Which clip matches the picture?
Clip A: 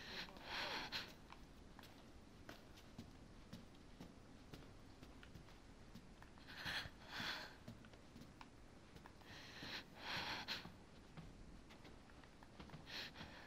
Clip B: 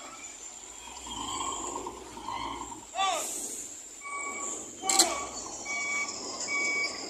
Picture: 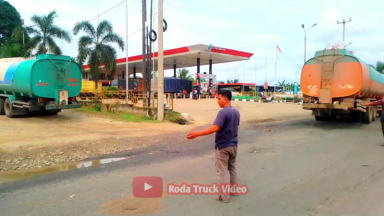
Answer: B